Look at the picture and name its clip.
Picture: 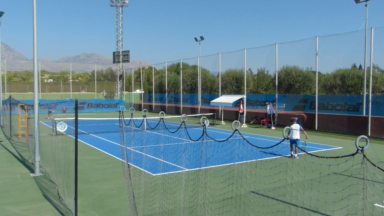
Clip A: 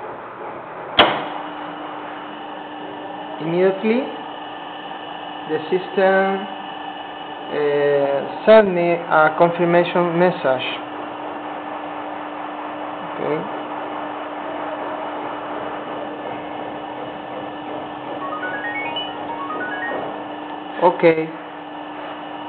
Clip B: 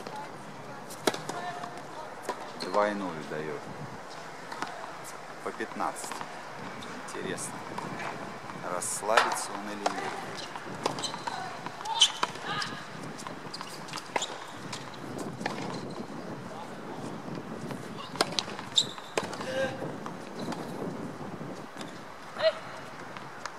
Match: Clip B